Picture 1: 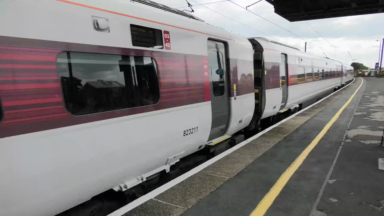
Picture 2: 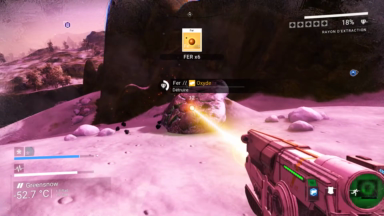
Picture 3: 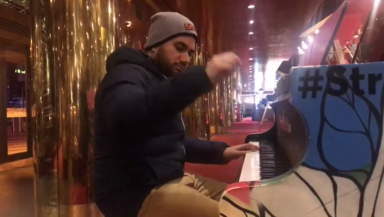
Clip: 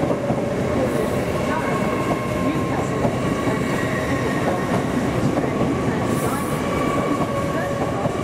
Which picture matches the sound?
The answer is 1